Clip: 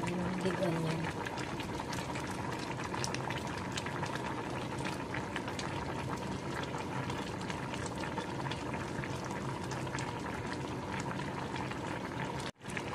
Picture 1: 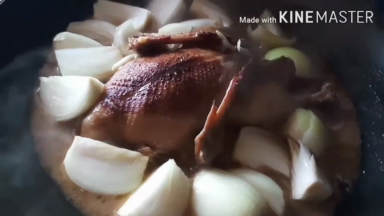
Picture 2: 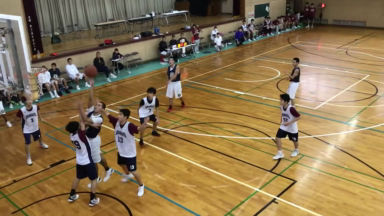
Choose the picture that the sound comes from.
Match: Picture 1